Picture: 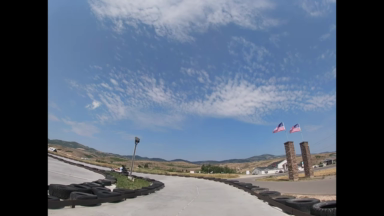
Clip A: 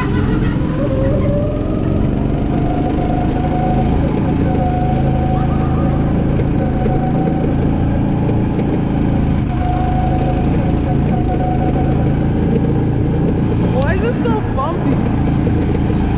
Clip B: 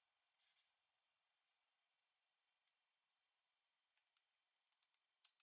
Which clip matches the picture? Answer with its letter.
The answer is A